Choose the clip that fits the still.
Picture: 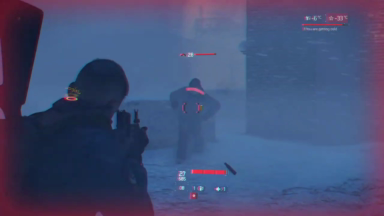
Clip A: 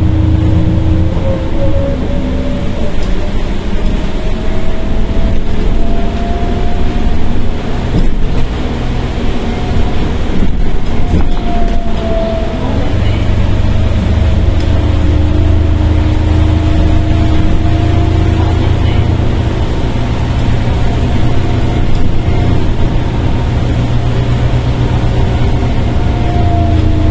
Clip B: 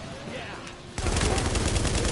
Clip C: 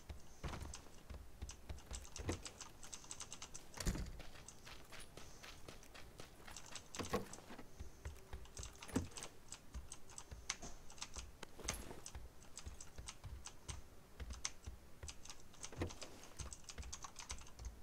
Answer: B